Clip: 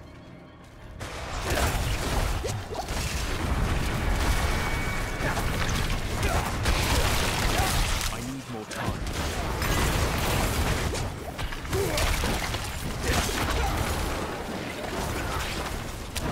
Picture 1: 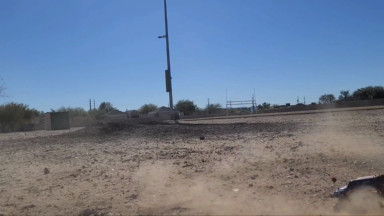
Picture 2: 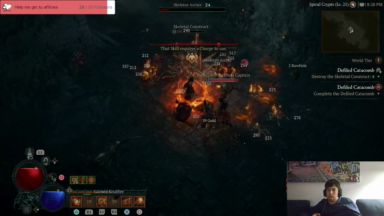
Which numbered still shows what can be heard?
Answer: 2